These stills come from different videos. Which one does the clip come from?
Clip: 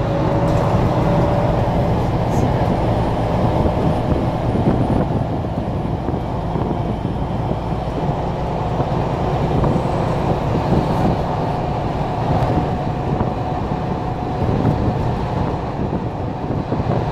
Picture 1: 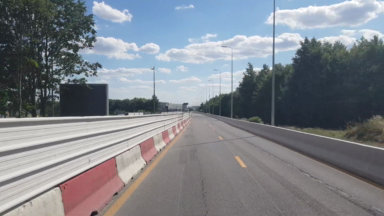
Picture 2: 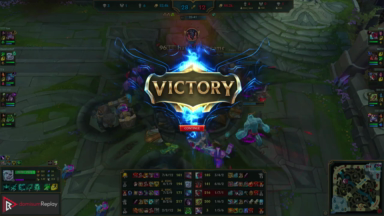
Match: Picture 1